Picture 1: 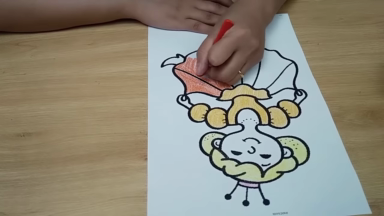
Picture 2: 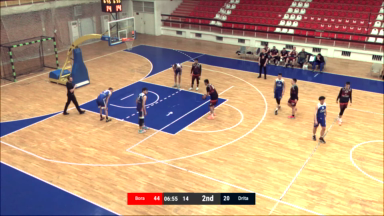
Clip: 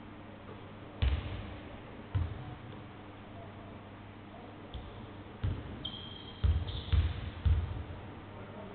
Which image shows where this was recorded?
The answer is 2